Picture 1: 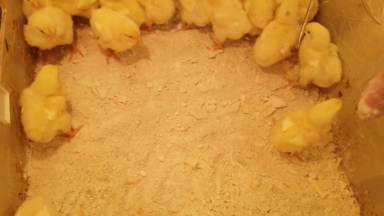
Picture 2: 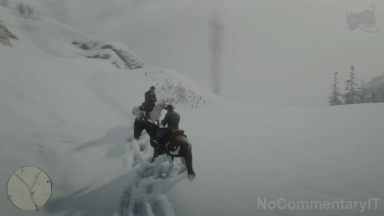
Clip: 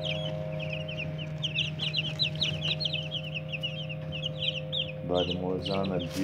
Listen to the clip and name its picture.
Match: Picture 1